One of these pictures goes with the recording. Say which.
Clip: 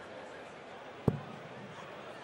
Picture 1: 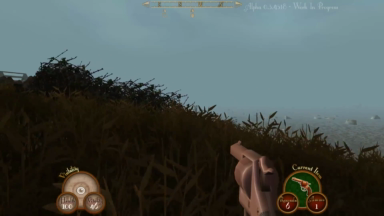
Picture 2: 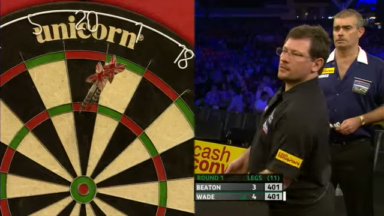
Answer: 2